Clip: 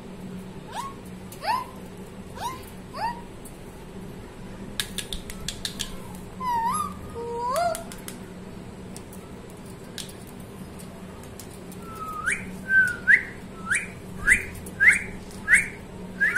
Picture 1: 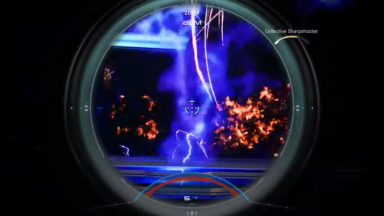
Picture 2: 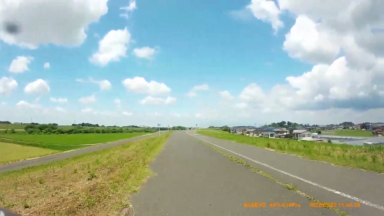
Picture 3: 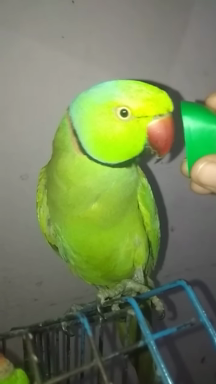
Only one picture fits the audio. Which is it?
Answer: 3